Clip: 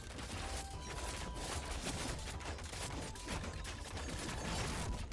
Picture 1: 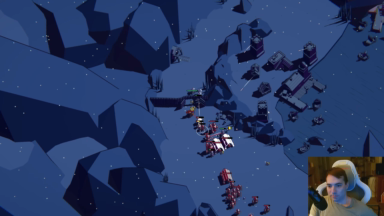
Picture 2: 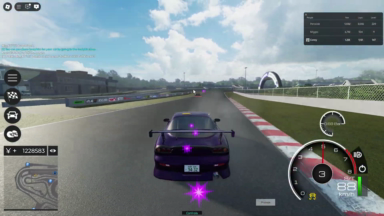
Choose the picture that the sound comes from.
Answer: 1